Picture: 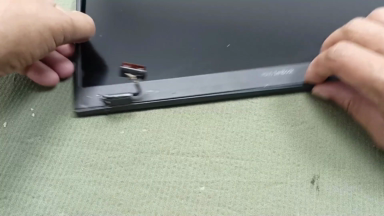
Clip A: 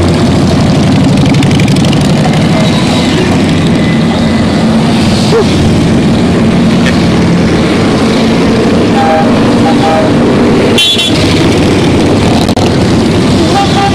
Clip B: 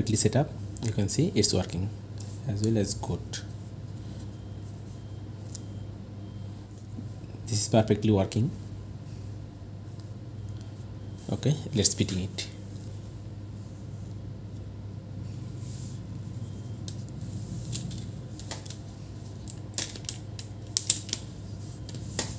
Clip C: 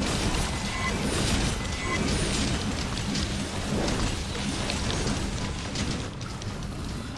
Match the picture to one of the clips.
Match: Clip B